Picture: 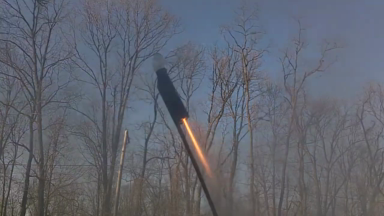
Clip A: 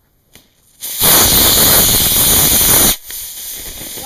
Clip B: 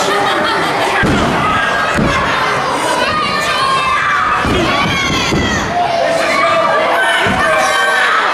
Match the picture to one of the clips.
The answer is A